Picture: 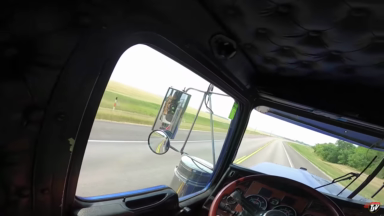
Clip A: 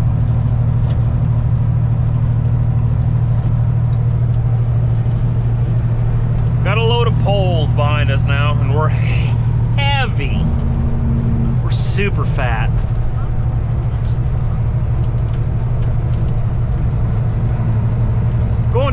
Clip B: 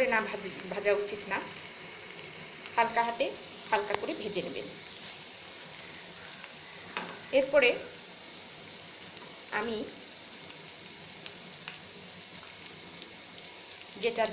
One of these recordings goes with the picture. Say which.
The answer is A